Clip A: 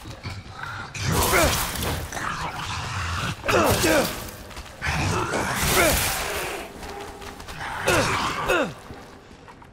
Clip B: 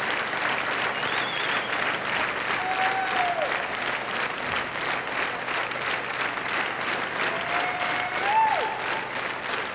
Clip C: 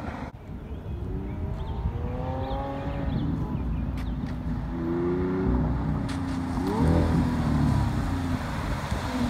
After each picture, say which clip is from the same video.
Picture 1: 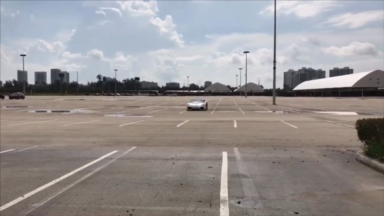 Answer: C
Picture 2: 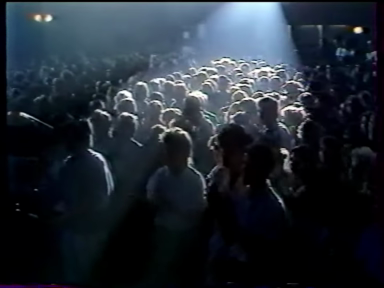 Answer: B